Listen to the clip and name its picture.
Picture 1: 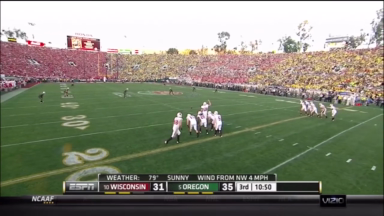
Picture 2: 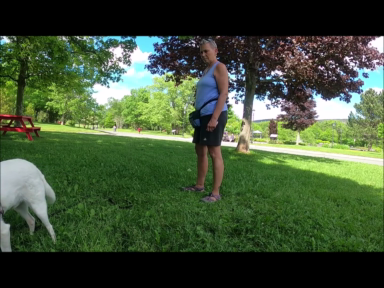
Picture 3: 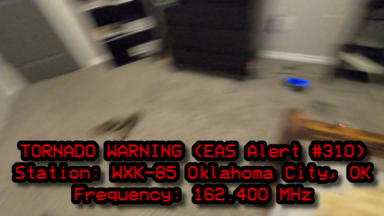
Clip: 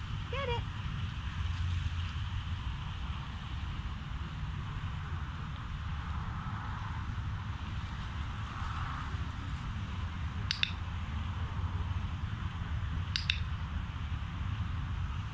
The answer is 2